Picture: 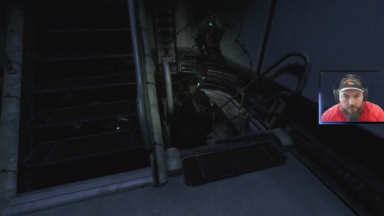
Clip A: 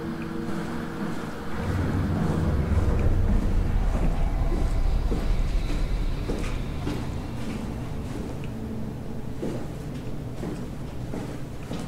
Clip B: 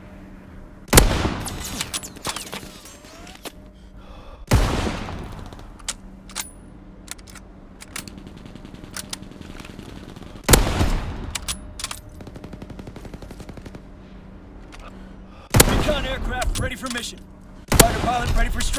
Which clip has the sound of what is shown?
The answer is A